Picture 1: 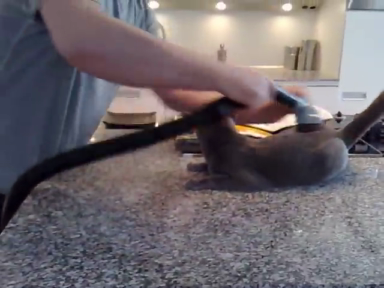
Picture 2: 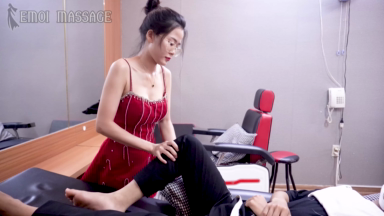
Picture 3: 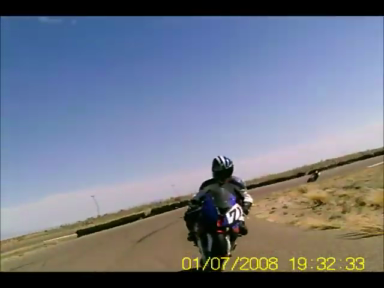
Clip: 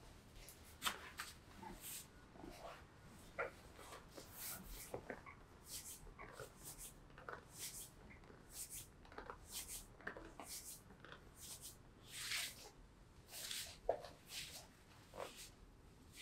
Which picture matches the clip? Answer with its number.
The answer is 2